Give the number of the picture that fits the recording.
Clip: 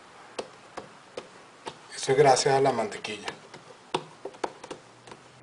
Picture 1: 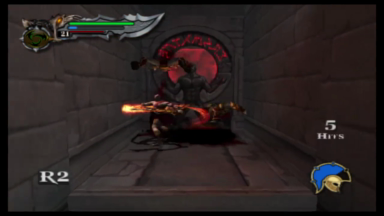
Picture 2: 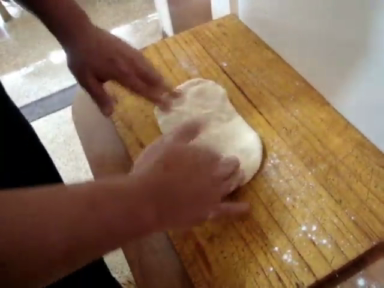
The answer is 2